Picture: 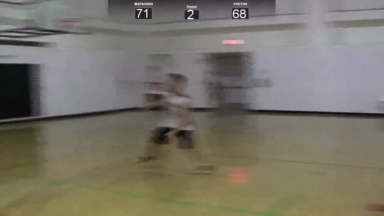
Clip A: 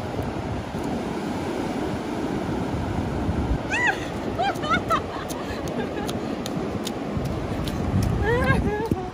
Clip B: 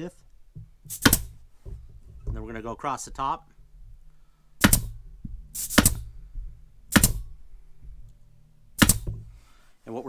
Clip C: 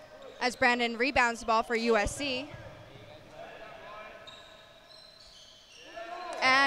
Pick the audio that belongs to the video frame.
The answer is C